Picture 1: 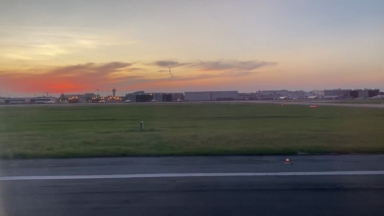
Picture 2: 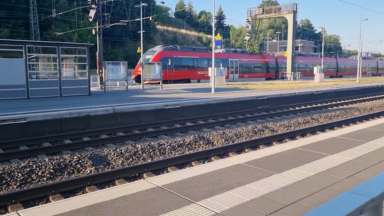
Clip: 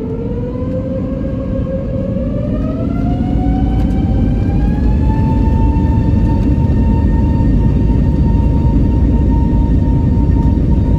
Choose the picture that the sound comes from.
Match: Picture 1